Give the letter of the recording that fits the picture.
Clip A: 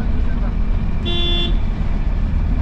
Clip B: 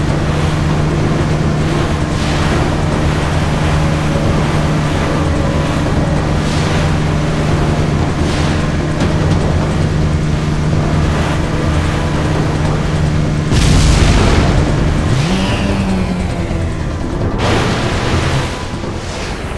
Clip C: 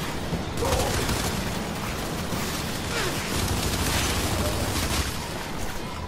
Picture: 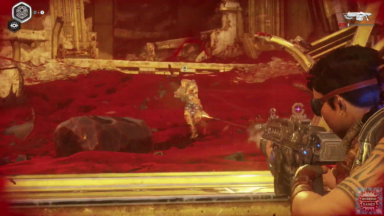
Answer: C